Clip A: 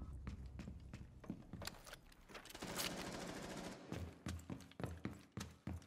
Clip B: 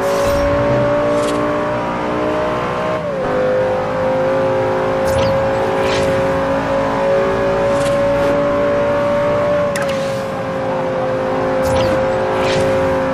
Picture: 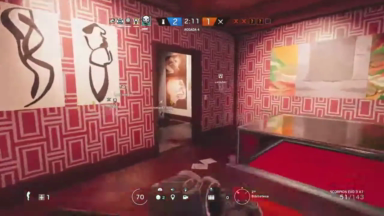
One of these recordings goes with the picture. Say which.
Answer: A